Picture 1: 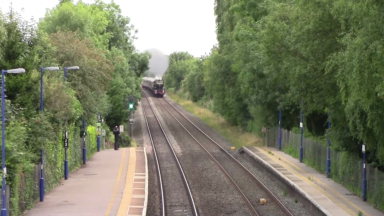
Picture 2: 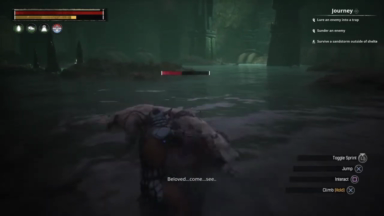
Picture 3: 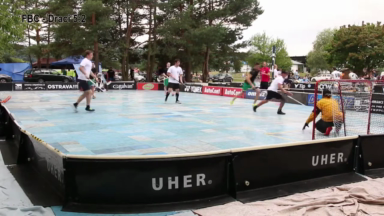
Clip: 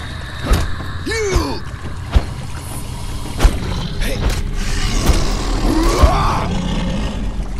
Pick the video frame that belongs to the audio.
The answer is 2